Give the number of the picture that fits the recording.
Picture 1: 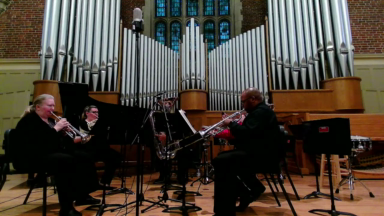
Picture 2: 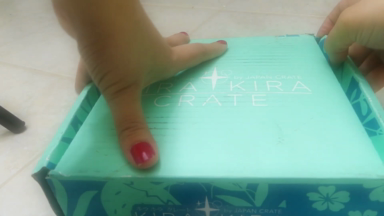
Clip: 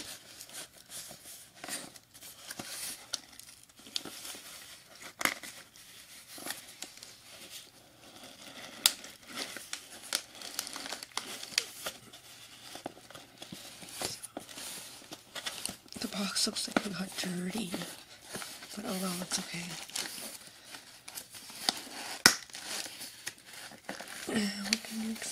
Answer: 2